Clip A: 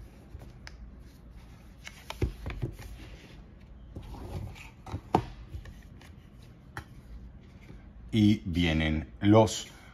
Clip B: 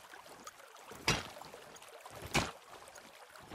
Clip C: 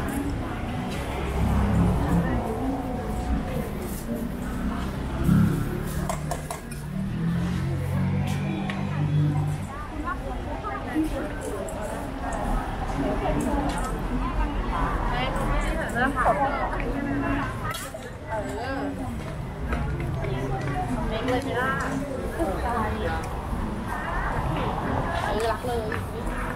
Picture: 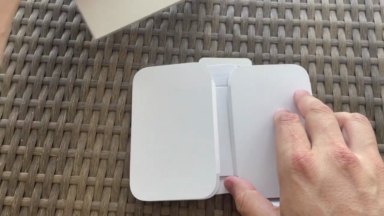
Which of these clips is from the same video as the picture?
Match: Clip A